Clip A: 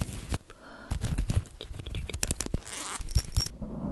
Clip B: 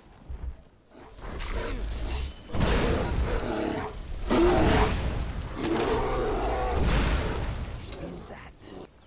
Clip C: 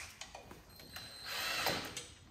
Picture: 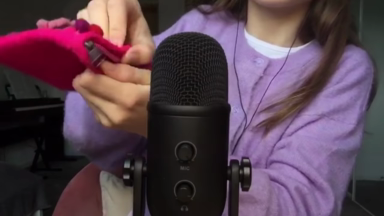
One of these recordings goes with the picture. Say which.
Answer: A